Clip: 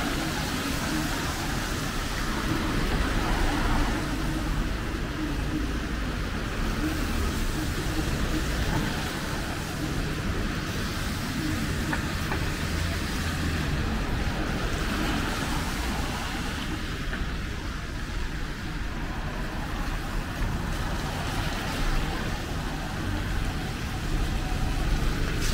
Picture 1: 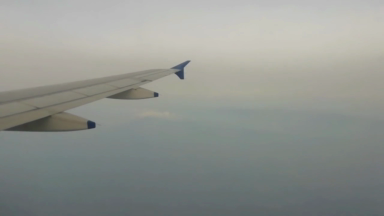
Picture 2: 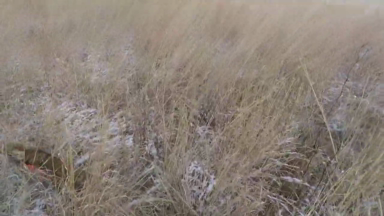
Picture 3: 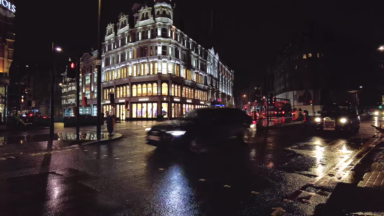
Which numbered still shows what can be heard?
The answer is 3